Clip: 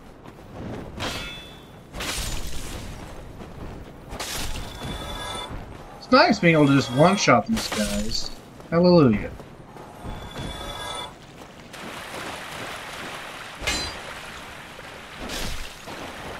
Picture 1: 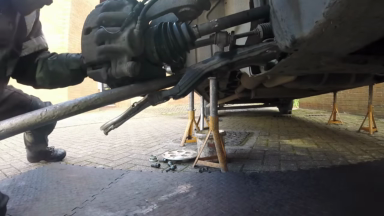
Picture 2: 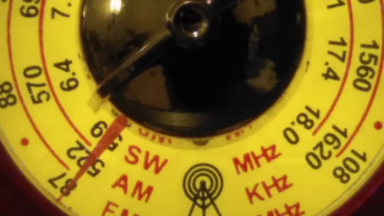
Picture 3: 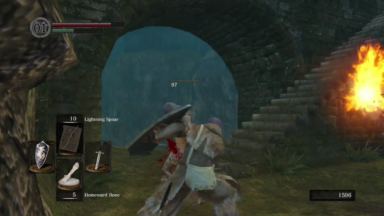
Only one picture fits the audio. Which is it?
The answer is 3